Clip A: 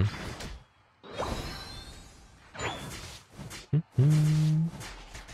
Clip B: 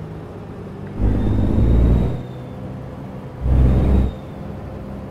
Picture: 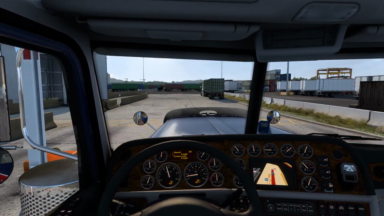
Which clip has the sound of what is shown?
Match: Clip B